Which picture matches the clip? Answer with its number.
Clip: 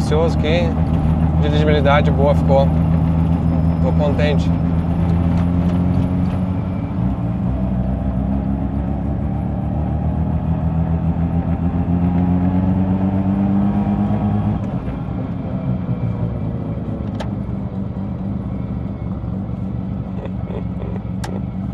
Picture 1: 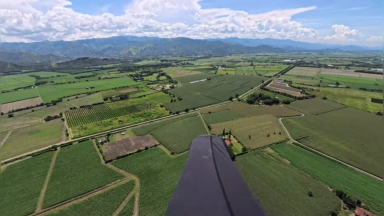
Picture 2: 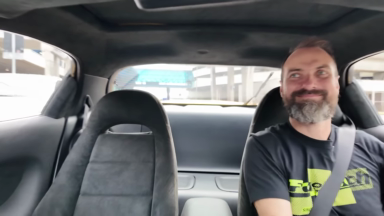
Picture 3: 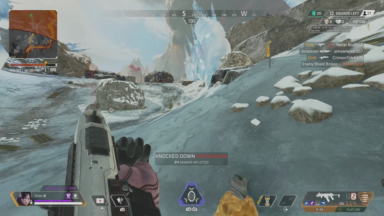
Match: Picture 2